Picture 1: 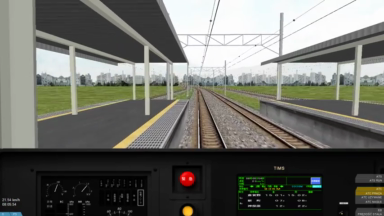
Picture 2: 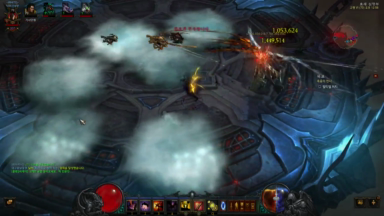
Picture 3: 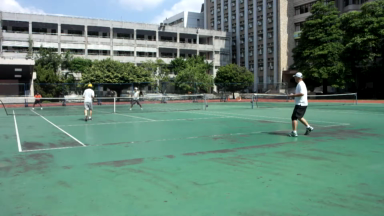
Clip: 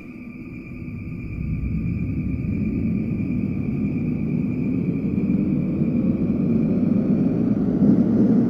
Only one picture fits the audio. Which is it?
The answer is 1